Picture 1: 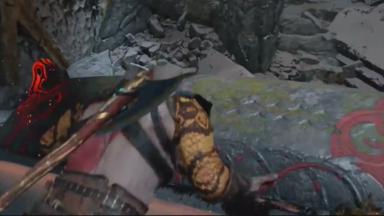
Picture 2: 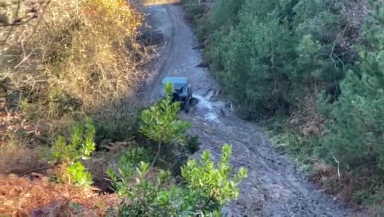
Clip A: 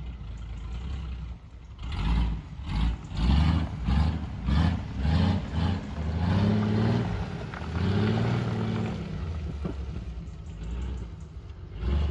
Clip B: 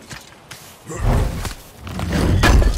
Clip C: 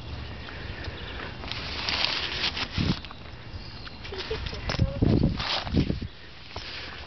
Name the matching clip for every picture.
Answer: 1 B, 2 A